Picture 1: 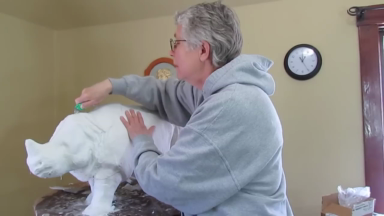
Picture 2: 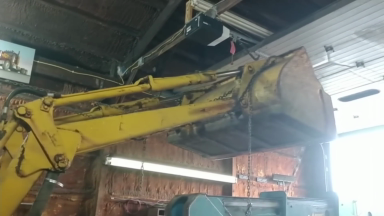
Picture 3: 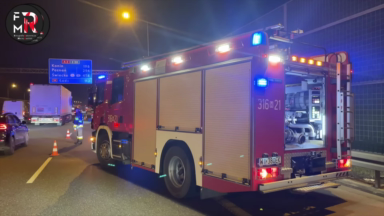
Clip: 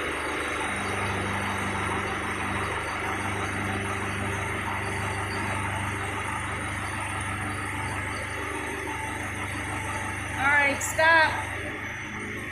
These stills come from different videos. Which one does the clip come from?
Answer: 2